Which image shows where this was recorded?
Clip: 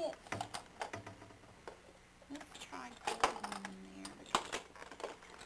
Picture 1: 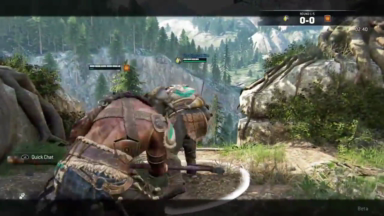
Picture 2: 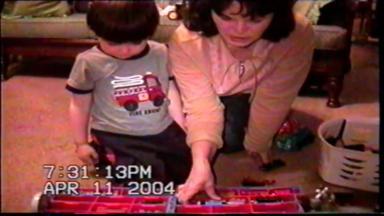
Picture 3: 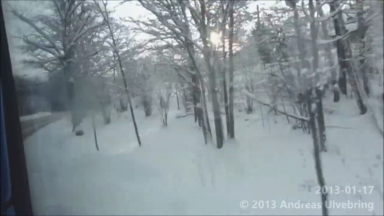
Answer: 2